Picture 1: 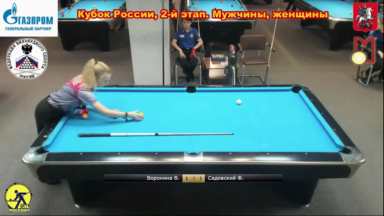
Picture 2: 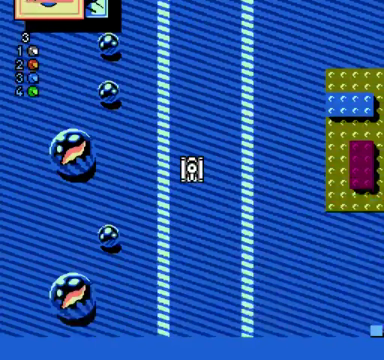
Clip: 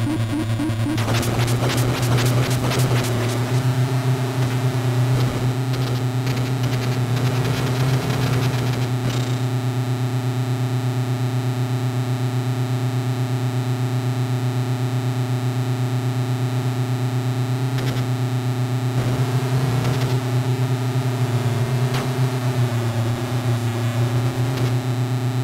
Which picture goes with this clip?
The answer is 2